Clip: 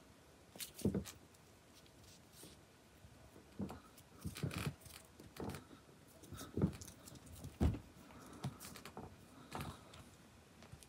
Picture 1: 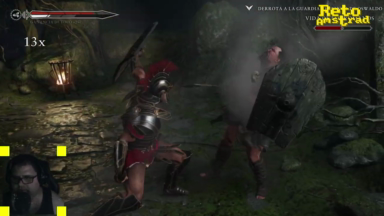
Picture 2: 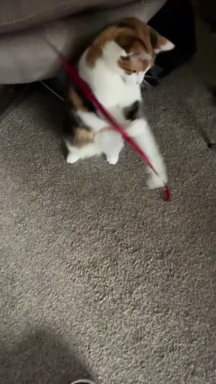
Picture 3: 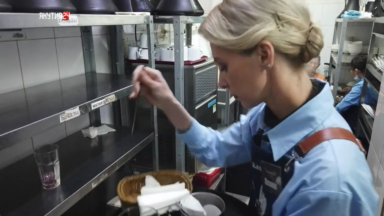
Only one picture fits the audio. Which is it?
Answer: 2